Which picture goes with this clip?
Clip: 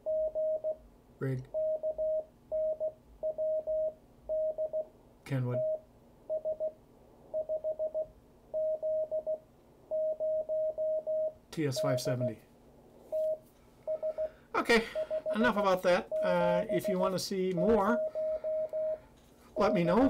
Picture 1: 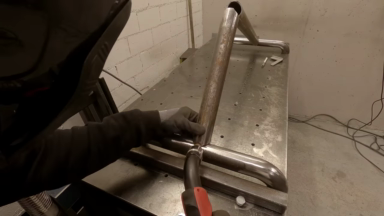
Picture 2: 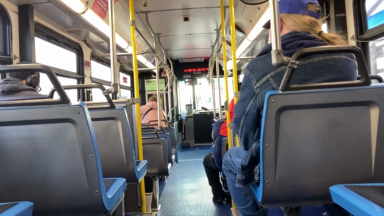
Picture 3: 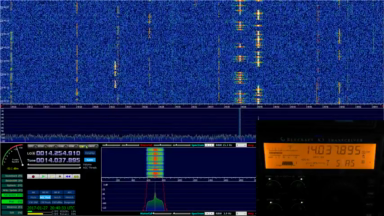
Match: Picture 3